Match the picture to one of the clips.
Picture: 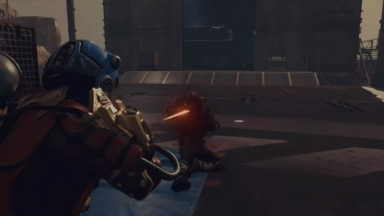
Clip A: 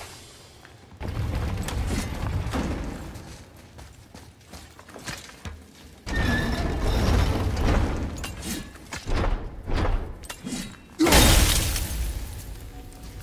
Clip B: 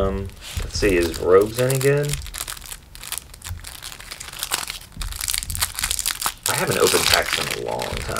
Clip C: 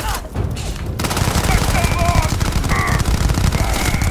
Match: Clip C